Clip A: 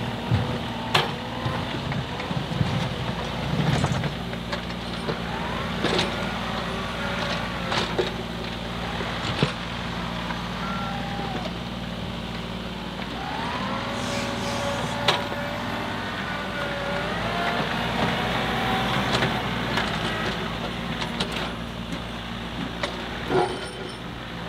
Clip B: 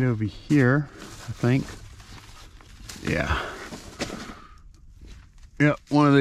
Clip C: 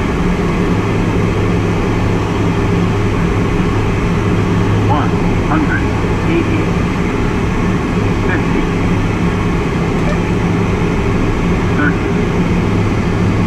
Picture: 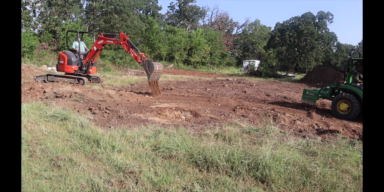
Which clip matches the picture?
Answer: A